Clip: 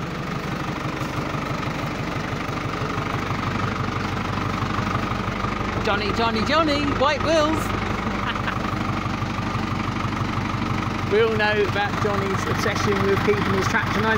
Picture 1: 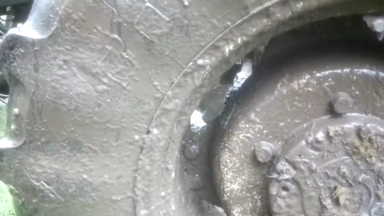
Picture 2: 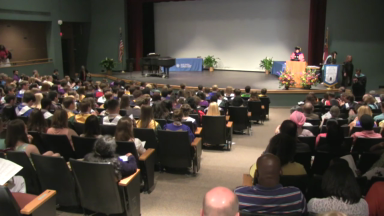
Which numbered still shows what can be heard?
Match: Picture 1